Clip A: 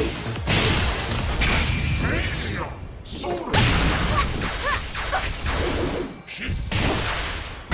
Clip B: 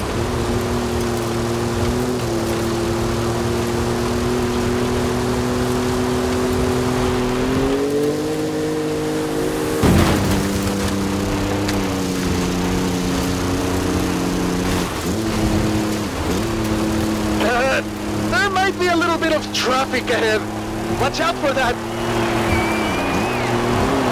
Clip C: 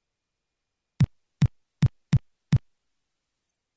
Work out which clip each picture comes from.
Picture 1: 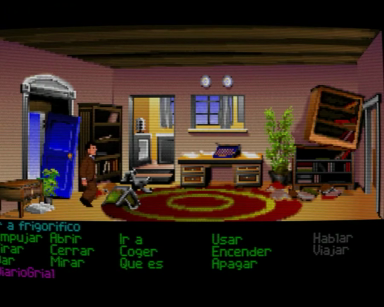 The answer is C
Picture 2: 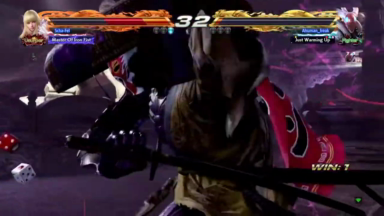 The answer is A